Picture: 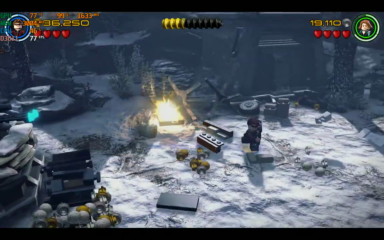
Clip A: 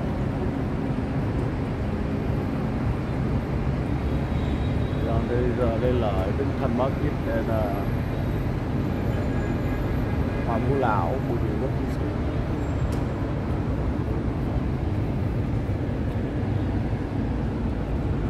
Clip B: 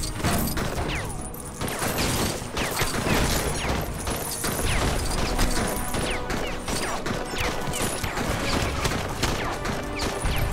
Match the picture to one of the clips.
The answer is B